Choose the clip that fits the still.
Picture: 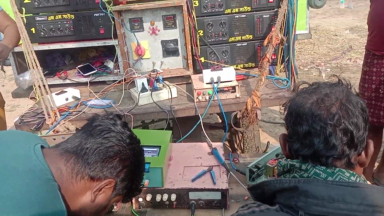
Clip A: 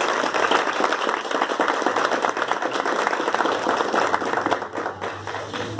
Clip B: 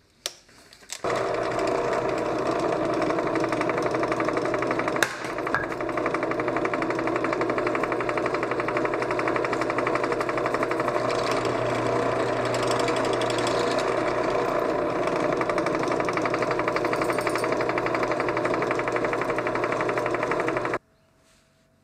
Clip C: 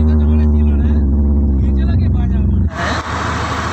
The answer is C